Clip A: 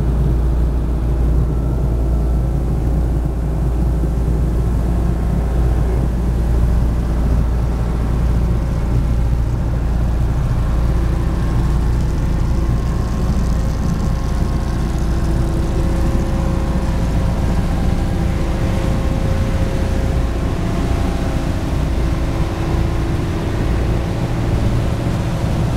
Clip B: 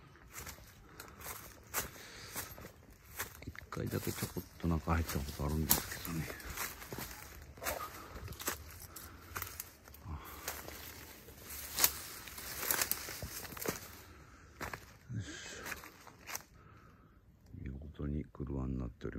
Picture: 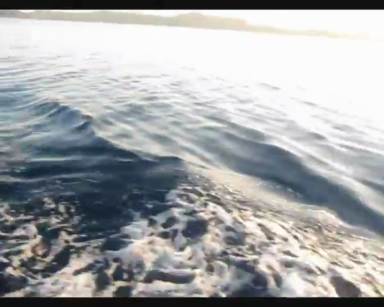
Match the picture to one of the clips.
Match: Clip A